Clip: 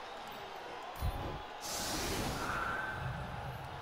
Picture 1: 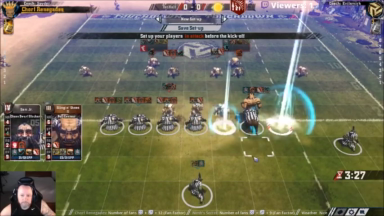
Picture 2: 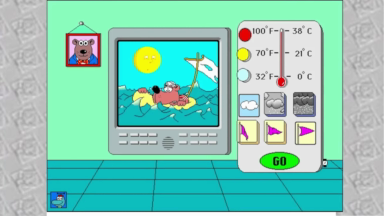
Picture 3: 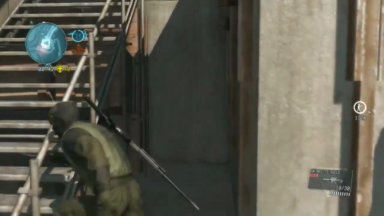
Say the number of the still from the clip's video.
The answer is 1